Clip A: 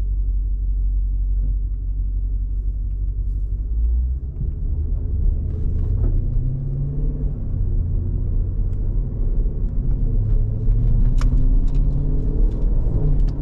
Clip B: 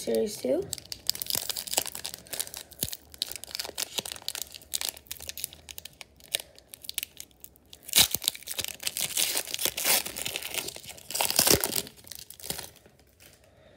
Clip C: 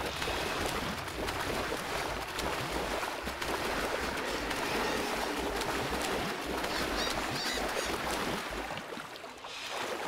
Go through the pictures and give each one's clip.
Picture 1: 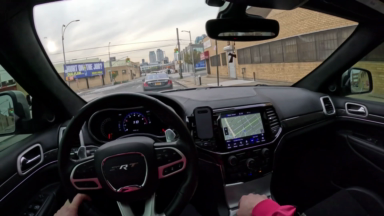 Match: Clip A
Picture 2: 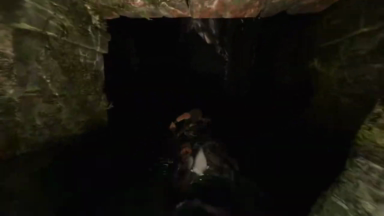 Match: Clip C